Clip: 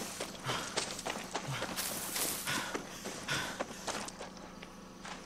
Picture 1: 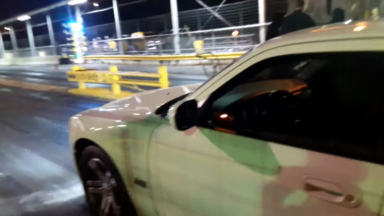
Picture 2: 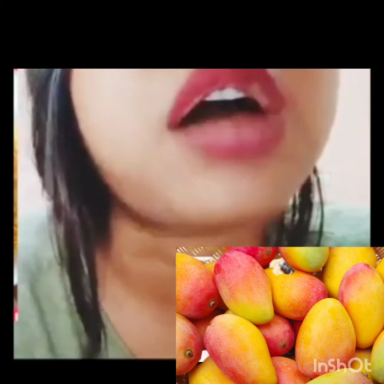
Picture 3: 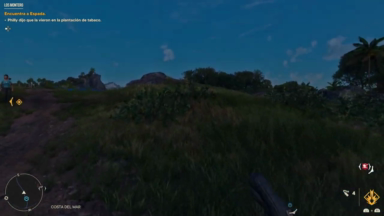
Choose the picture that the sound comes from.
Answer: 3